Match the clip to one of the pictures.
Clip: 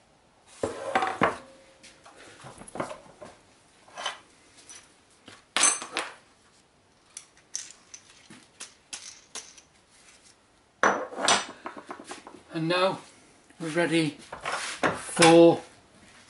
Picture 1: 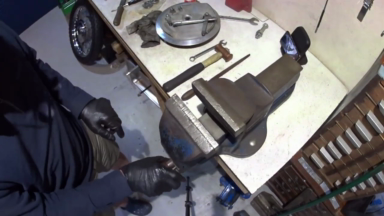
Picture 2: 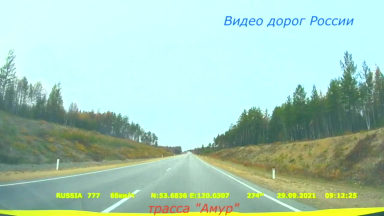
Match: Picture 1